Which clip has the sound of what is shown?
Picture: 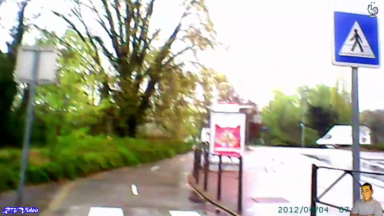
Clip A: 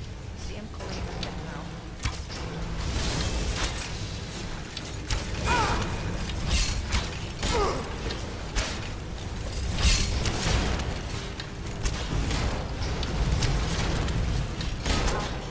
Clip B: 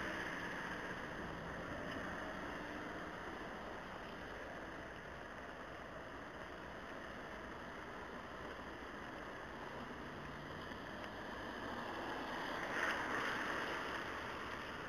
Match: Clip B